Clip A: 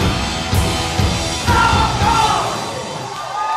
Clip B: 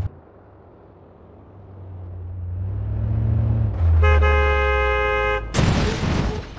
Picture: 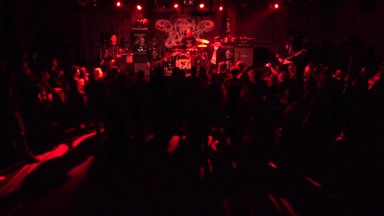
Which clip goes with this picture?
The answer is A